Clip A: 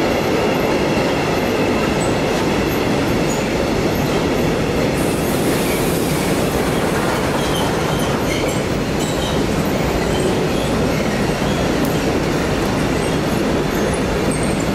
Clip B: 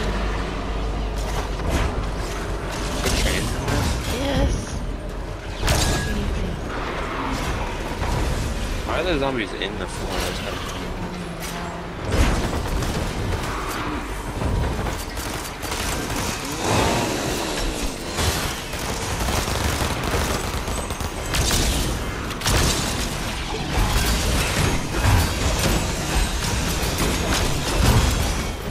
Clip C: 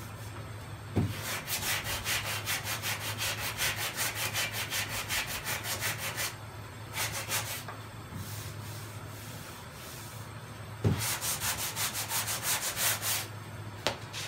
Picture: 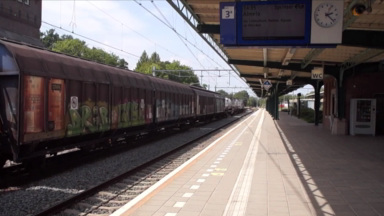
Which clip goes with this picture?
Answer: A